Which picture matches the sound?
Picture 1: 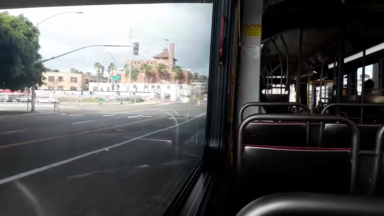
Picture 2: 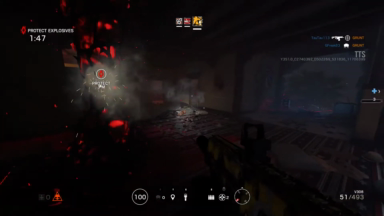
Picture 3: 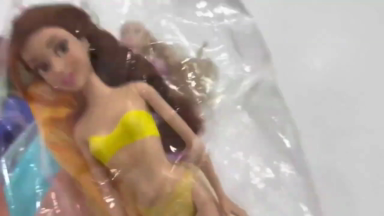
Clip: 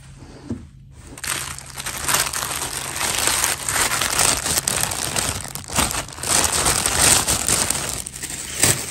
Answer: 3